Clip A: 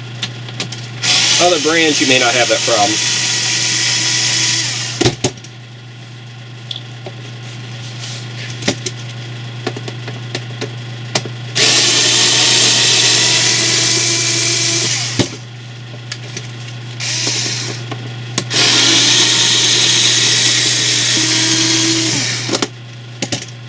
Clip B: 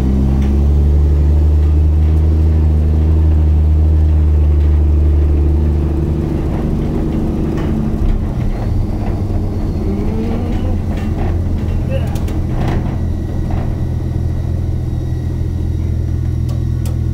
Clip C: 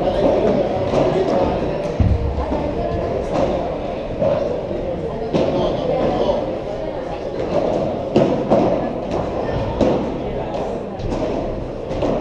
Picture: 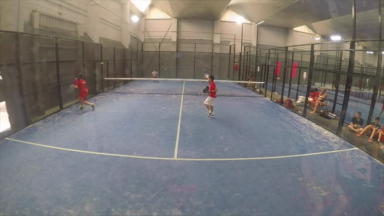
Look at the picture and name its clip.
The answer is C